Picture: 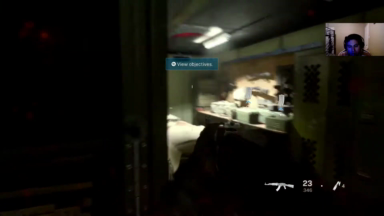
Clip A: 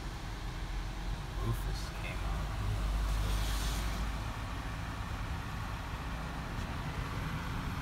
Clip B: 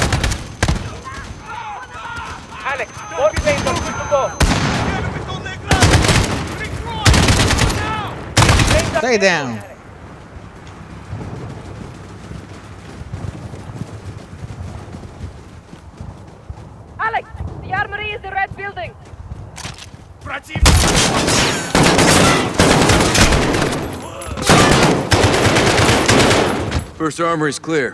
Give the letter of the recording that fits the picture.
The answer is B